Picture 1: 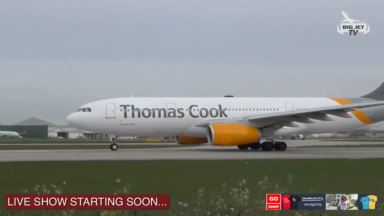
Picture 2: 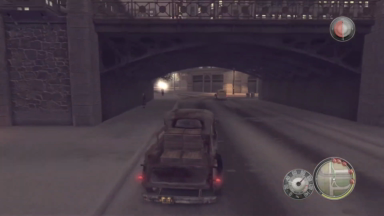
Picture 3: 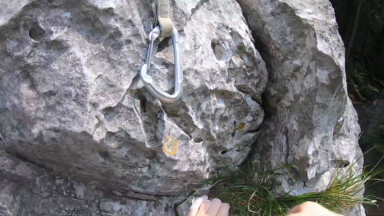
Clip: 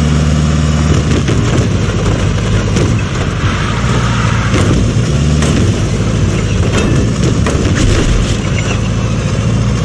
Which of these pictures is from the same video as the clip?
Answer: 2